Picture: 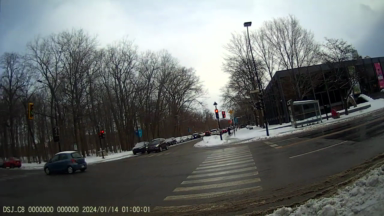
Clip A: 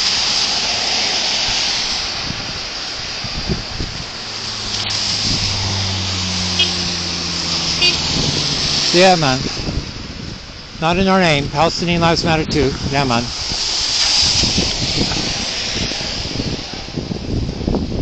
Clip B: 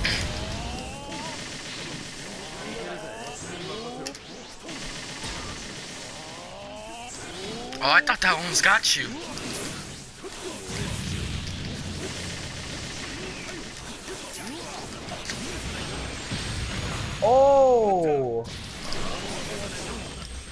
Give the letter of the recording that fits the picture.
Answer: A